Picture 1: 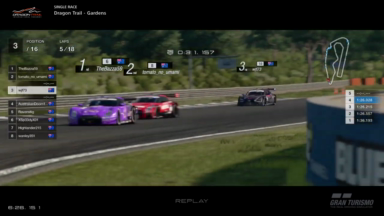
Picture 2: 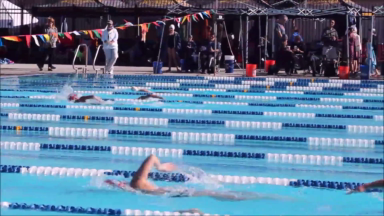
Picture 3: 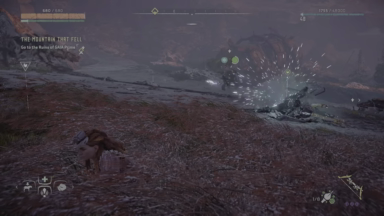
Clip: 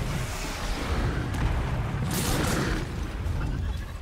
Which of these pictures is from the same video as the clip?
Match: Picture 3